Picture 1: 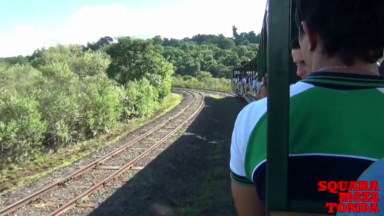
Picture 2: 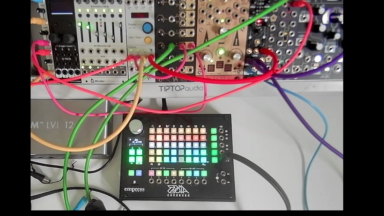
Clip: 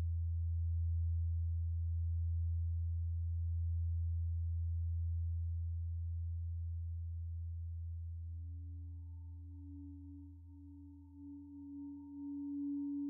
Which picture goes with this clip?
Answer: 2